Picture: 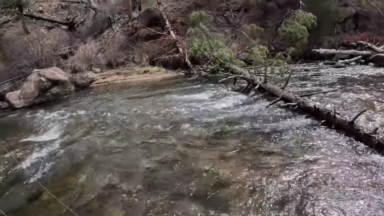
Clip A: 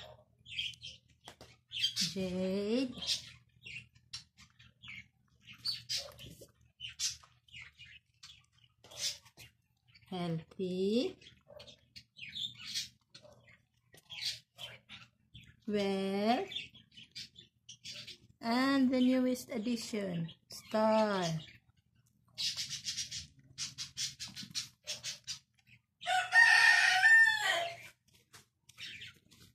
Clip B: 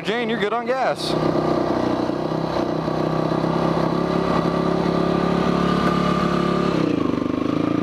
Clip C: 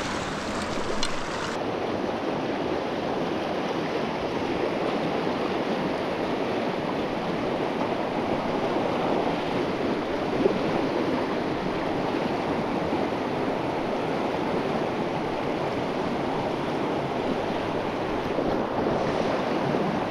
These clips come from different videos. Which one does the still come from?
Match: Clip C